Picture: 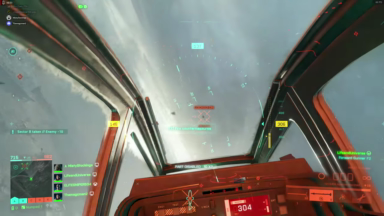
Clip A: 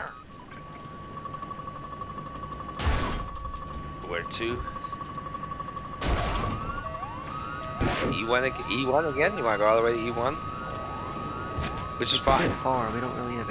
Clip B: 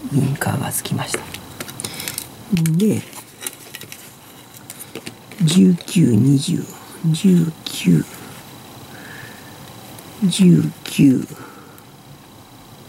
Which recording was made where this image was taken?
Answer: A